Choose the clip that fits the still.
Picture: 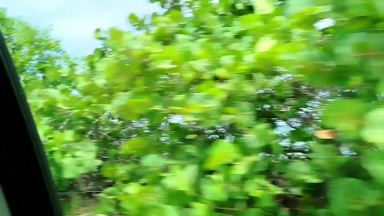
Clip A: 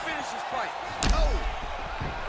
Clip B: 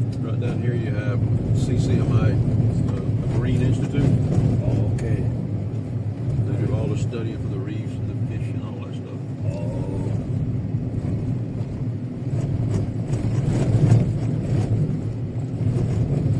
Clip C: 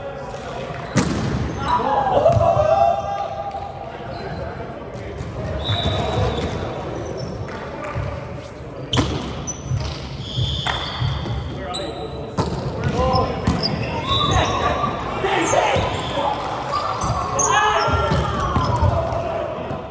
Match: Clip B